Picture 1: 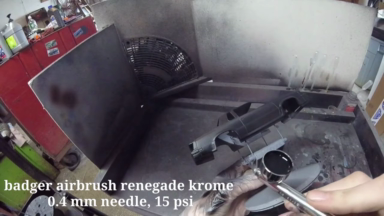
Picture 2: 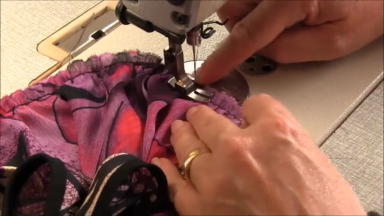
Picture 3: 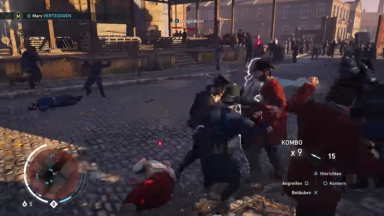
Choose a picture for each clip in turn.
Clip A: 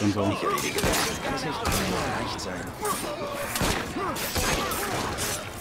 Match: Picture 3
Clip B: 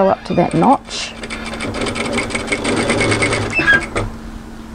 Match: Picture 2